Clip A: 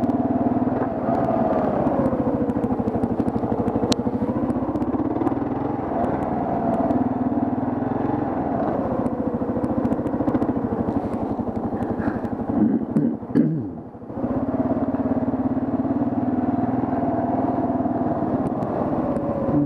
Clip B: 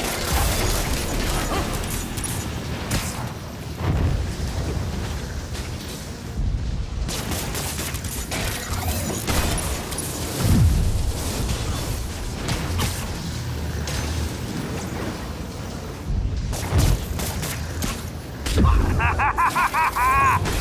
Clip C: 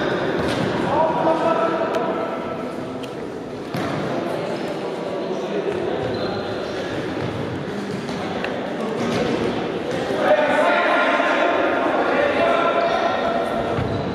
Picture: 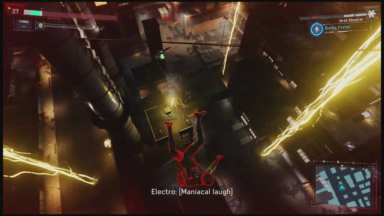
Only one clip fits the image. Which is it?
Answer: B